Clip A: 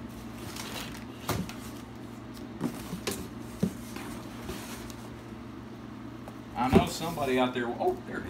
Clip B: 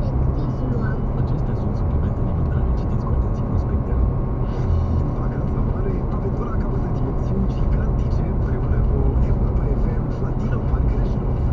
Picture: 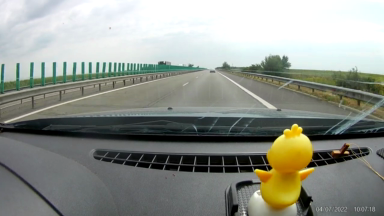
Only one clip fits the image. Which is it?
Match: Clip B